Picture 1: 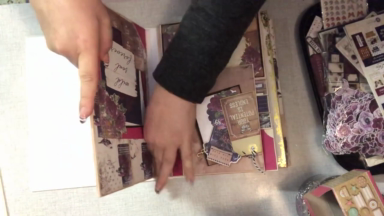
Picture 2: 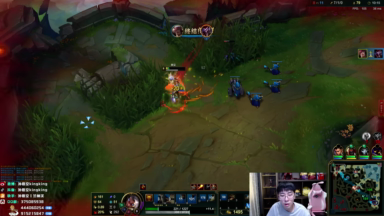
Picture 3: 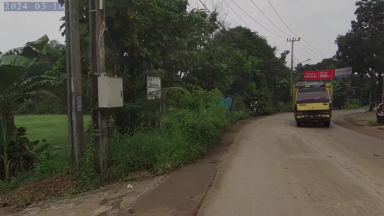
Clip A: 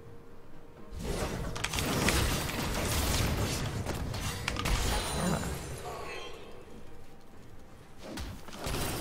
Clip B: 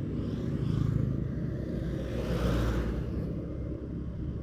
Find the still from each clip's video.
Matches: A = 2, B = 3